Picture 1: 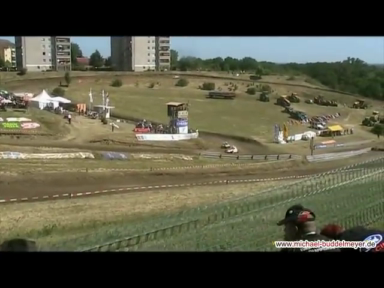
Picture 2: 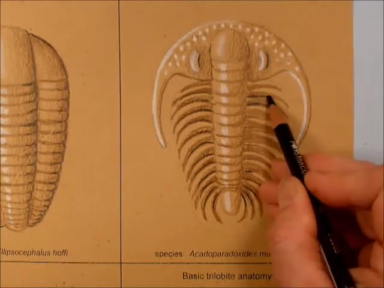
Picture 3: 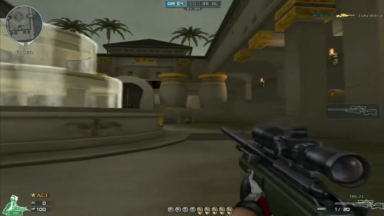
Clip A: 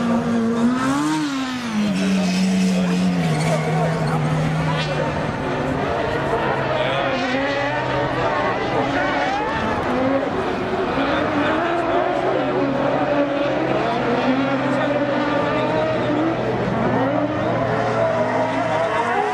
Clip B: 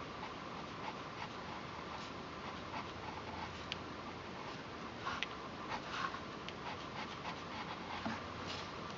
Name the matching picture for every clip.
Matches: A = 1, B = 2